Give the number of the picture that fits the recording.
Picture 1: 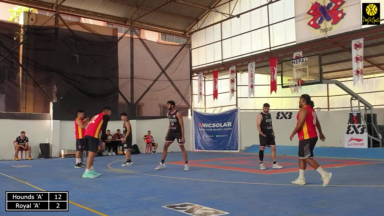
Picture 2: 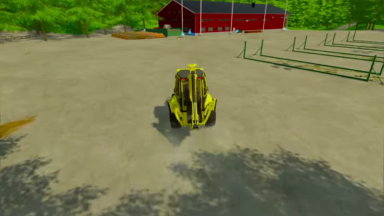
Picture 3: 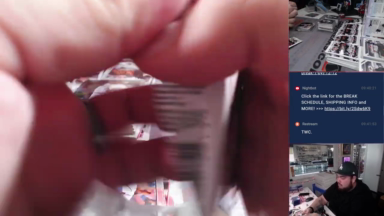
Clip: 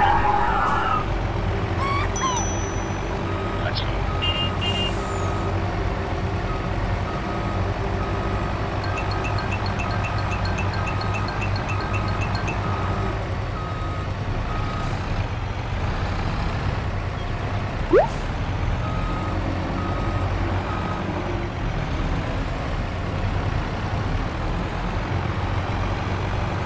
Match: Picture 2